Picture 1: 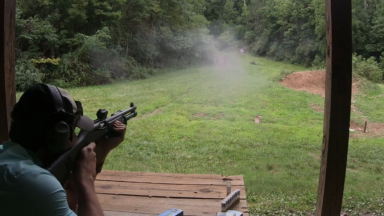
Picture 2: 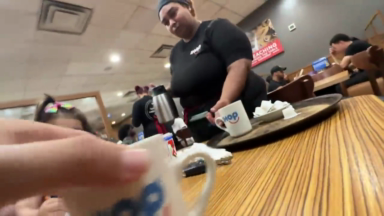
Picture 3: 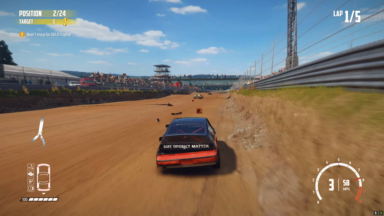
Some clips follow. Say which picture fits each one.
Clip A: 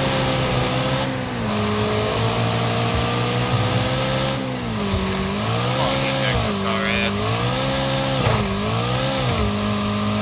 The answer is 3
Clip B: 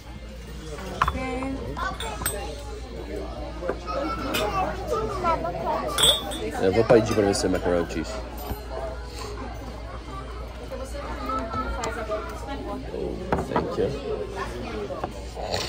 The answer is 2